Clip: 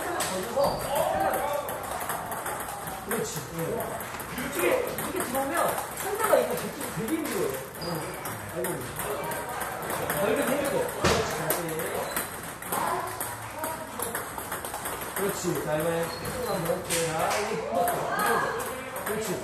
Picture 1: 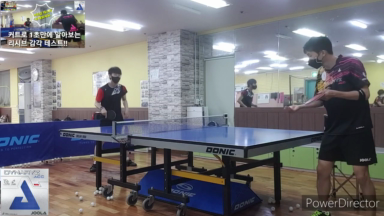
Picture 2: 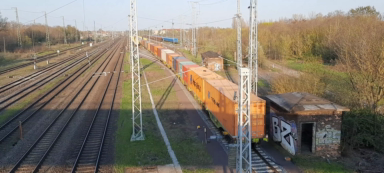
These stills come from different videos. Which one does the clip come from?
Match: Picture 1